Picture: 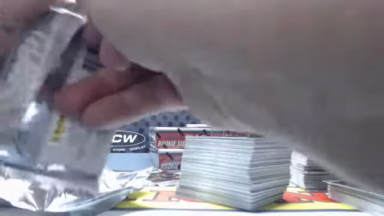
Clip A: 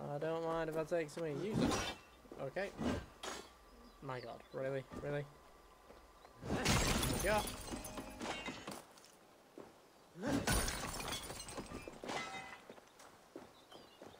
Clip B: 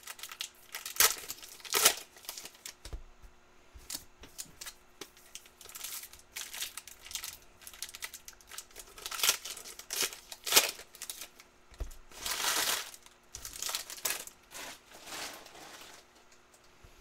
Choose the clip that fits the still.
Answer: B